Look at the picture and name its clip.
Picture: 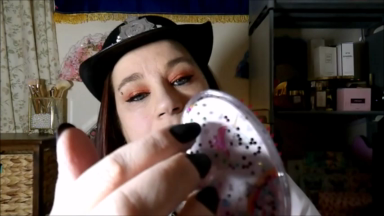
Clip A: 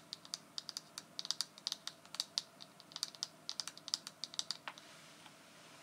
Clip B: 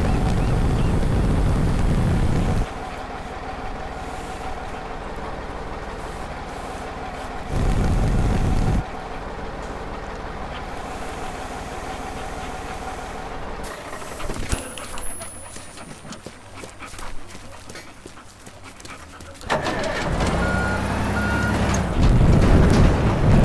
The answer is A